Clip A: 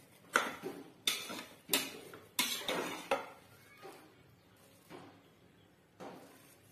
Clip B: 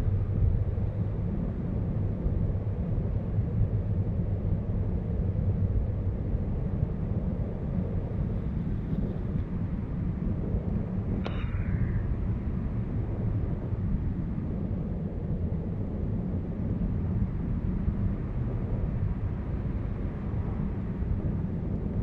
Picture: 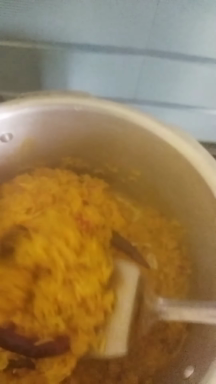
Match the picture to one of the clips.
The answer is A